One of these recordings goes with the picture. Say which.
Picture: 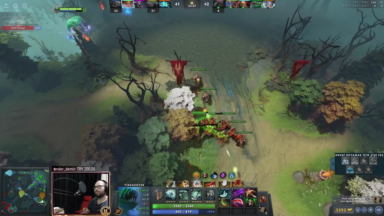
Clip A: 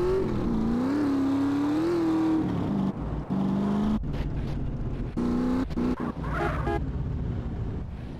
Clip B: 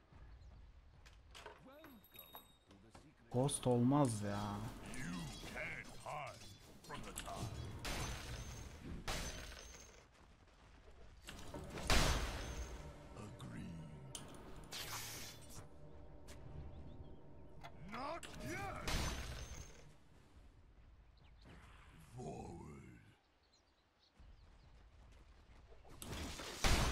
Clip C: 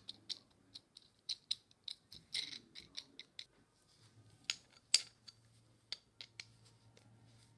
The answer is B